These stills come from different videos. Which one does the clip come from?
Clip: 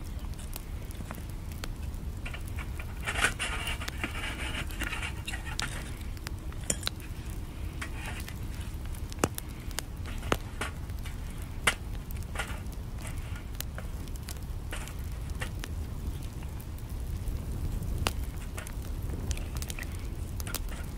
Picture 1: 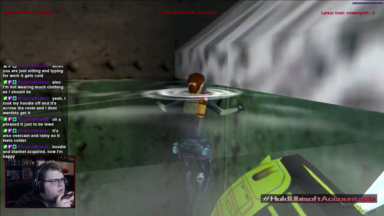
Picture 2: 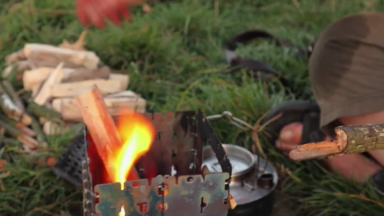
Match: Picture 2